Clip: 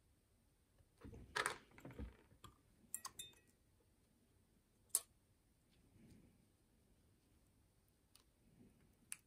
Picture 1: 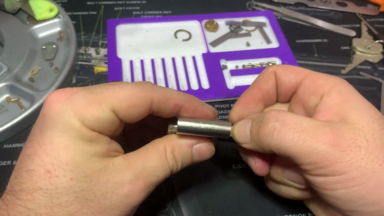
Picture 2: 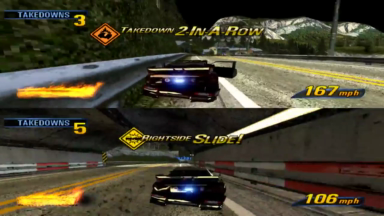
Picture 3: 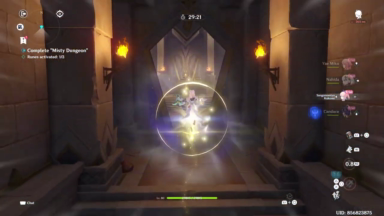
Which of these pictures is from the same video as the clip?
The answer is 1